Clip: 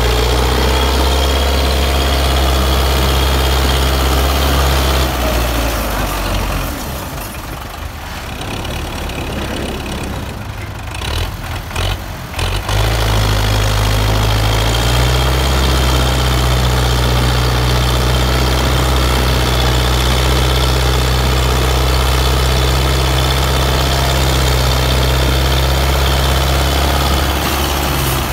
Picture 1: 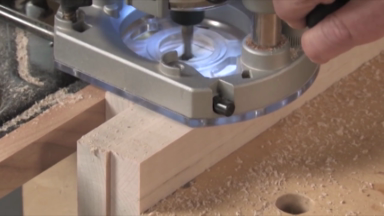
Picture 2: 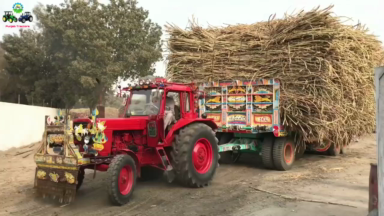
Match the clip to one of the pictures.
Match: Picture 2